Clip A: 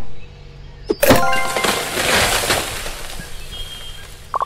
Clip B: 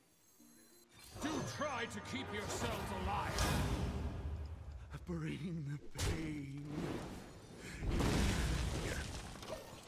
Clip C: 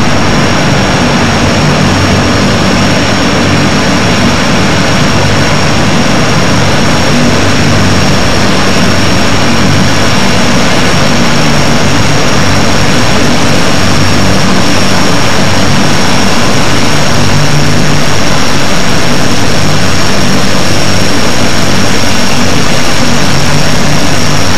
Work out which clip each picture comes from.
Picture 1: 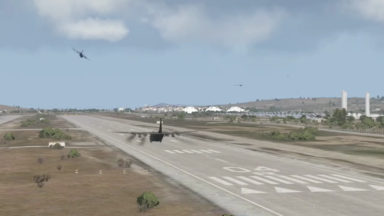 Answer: C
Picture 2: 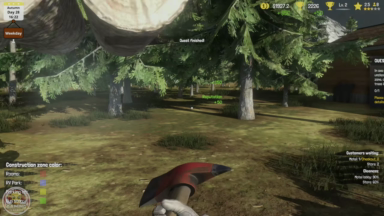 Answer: A